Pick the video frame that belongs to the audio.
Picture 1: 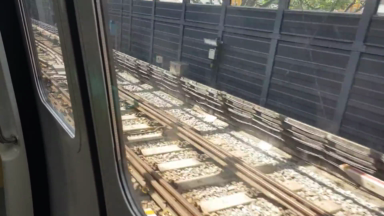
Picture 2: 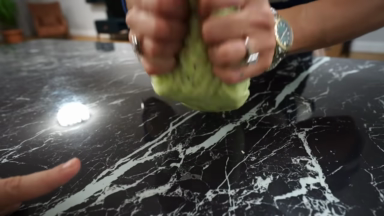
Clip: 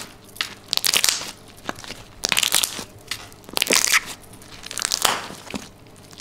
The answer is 2